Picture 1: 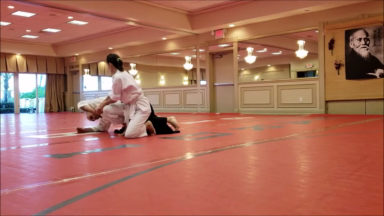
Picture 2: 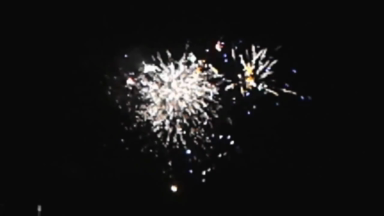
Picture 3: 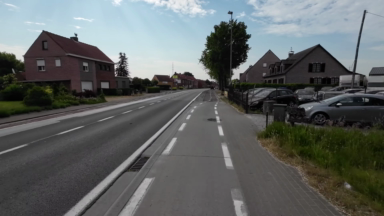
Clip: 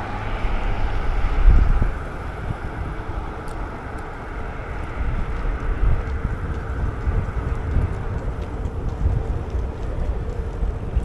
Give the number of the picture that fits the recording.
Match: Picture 3